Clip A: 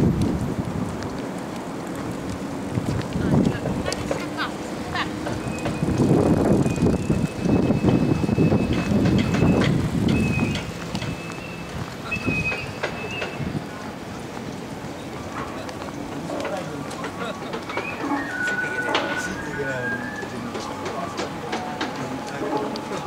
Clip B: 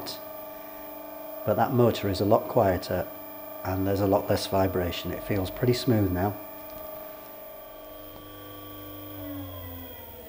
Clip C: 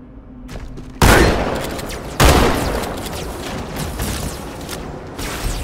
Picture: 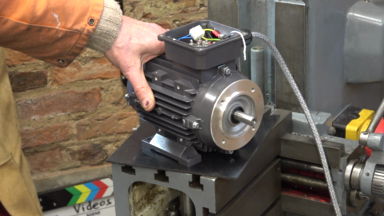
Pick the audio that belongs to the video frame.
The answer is B